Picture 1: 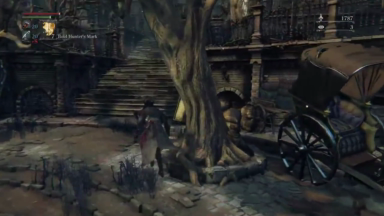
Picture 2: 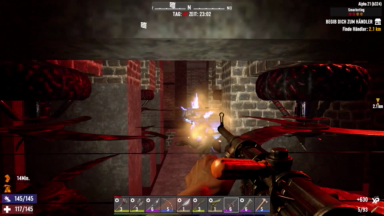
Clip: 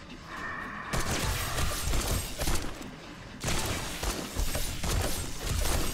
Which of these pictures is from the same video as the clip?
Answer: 2